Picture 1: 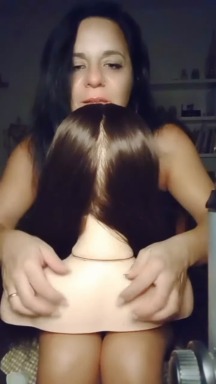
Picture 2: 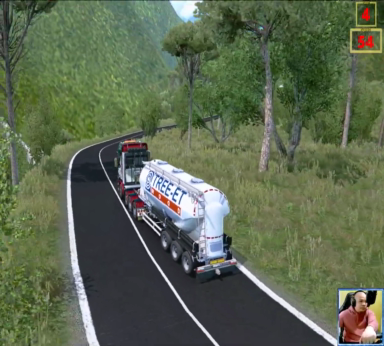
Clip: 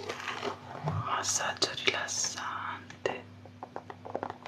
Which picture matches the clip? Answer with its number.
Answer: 1